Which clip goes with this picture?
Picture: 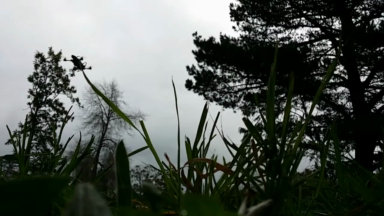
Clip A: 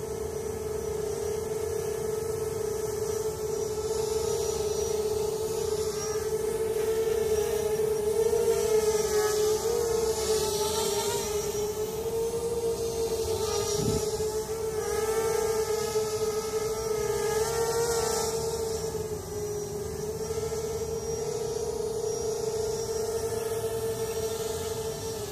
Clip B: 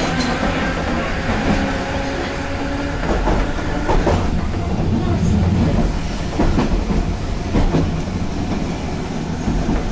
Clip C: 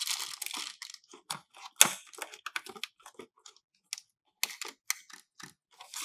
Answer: A